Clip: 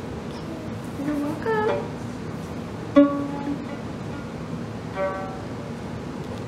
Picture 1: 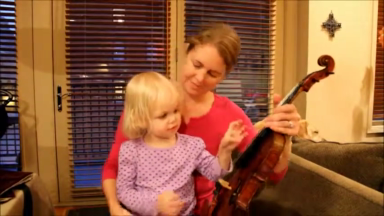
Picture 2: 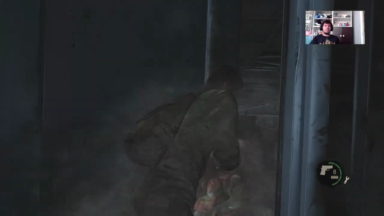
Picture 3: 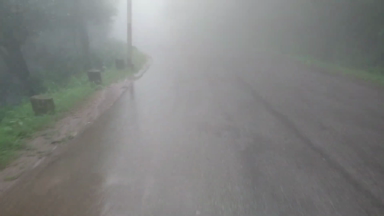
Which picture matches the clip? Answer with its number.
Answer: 1